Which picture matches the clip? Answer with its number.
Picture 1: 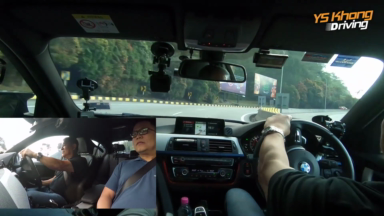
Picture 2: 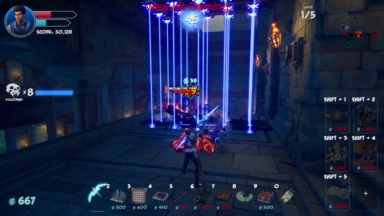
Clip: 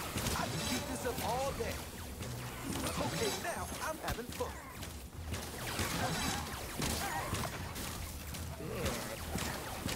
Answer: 2